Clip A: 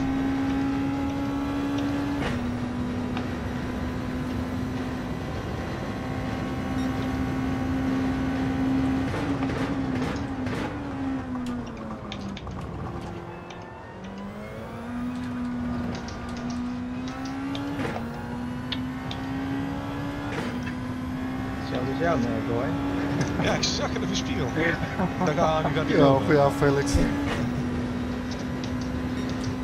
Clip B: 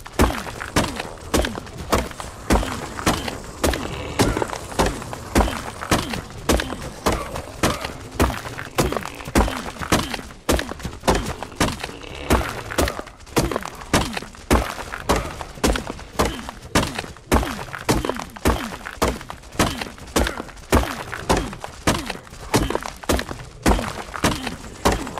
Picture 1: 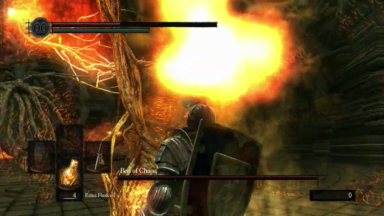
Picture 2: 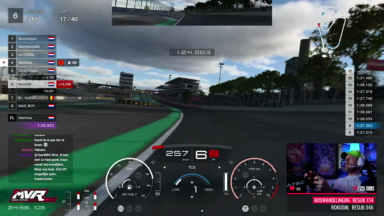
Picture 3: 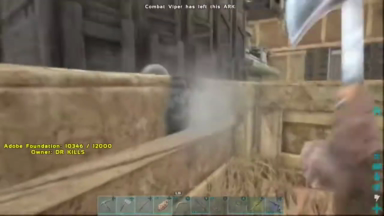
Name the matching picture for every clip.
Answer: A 2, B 3